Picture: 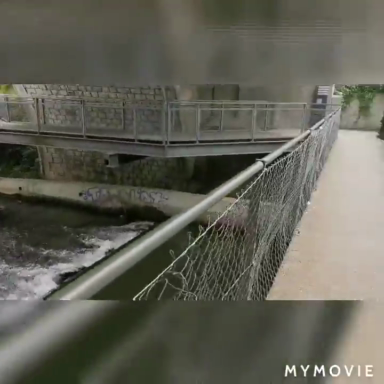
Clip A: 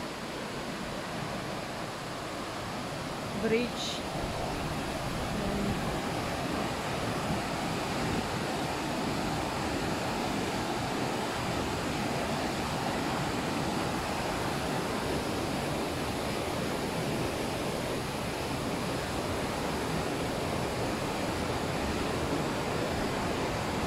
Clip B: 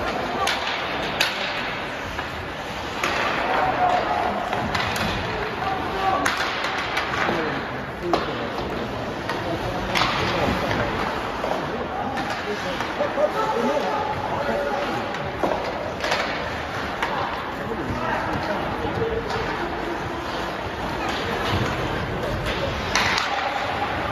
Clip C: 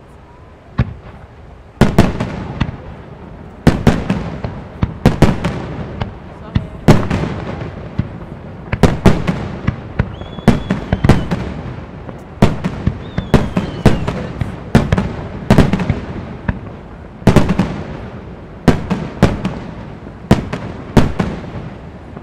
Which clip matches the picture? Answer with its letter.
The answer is A